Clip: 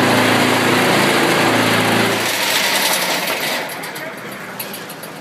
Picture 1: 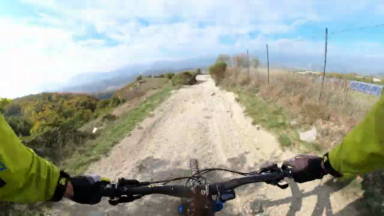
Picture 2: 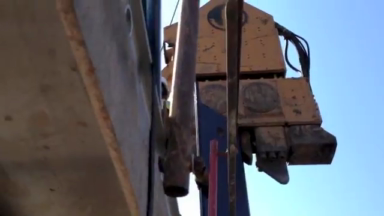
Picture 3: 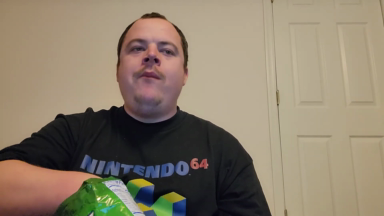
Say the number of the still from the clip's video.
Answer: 2